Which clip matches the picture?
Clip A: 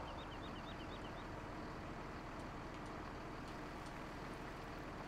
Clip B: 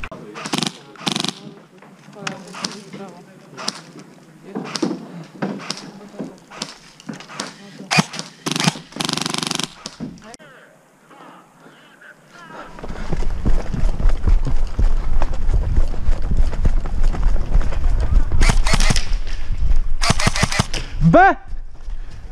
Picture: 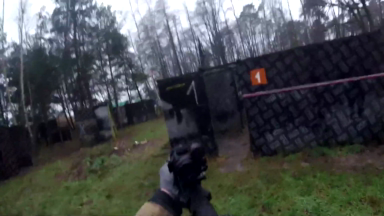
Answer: B